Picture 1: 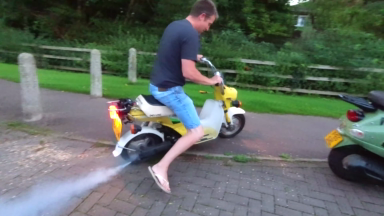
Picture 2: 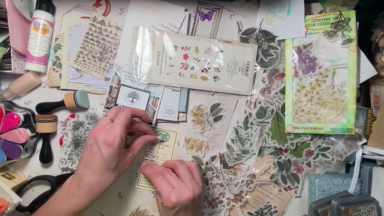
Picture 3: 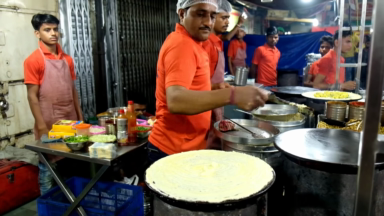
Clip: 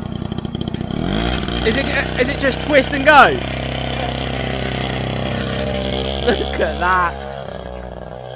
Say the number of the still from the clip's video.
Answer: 1